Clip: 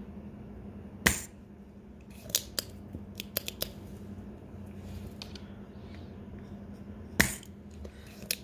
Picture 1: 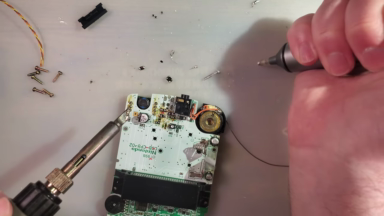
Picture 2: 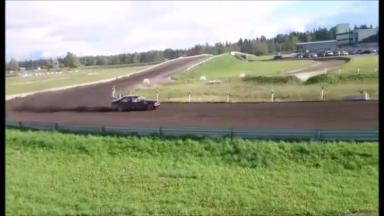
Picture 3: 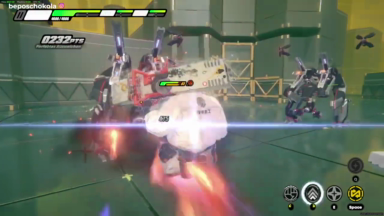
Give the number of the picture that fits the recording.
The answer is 1